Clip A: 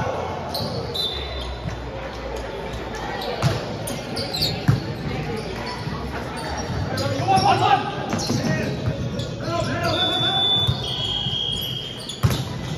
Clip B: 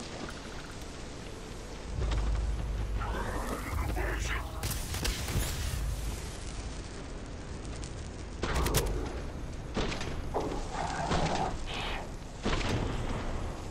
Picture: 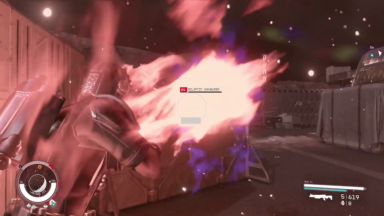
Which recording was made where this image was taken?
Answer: B